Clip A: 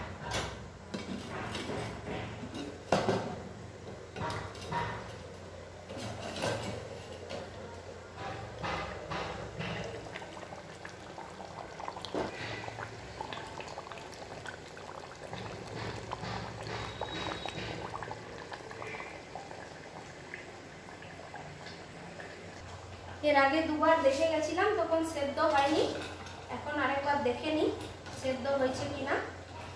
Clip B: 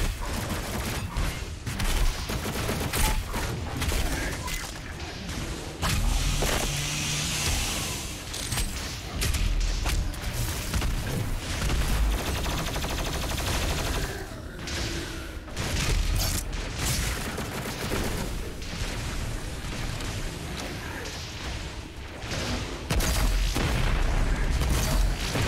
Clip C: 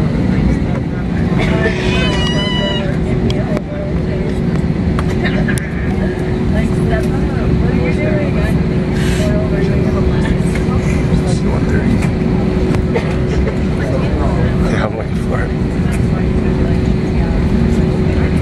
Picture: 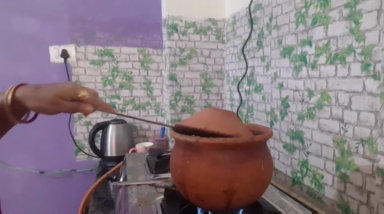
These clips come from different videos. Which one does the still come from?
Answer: A